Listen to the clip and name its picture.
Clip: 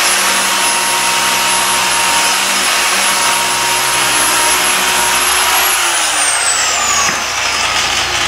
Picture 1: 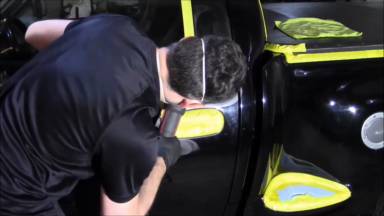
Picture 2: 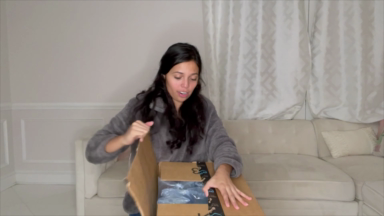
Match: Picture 1